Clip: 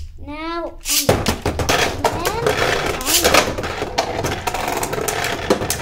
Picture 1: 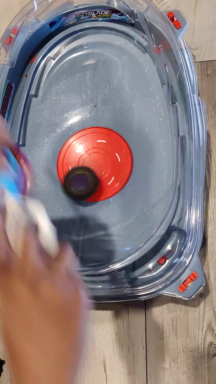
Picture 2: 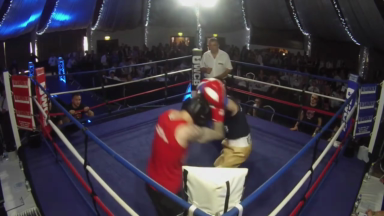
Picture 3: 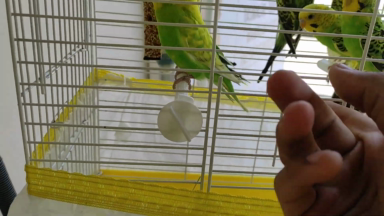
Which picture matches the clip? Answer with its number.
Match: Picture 1